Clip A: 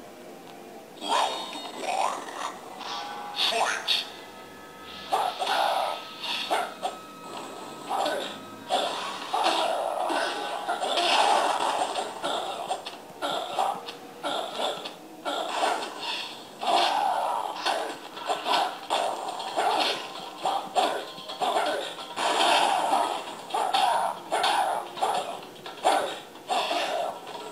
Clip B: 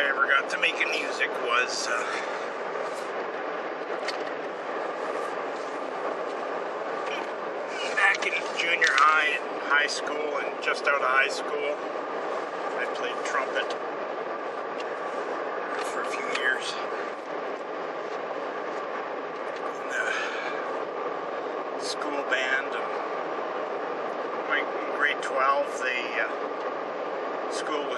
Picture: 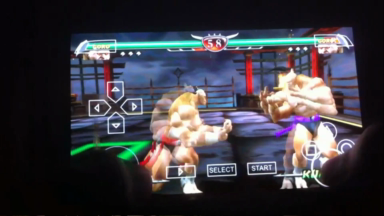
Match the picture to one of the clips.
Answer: A